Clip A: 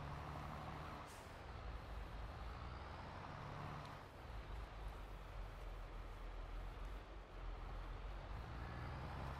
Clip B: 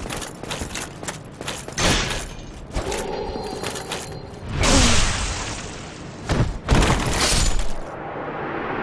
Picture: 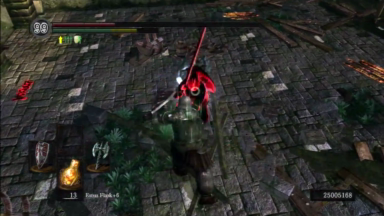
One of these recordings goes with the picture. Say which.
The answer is B